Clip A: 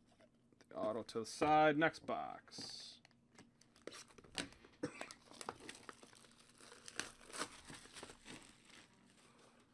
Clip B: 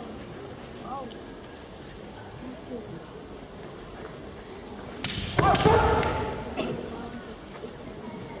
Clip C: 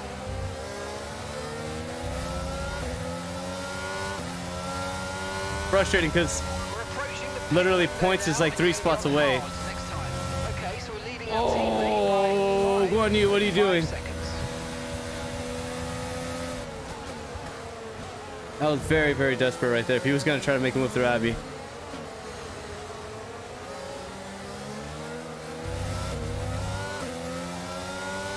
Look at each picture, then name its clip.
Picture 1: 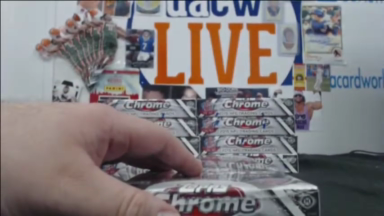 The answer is A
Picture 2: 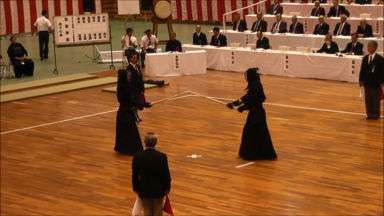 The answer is B